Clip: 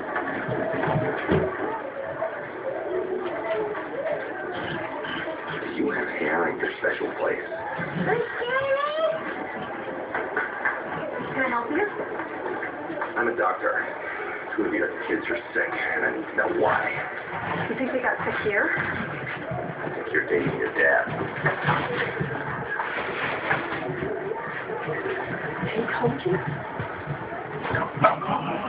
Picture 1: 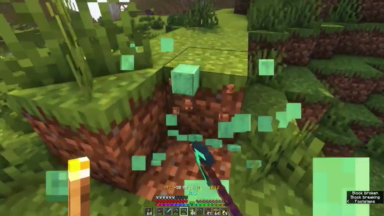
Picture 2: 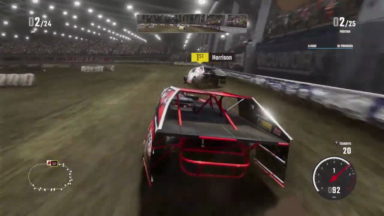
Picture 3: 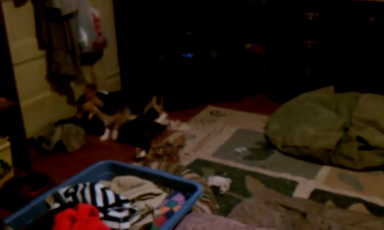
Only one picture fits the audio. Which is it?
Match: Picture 3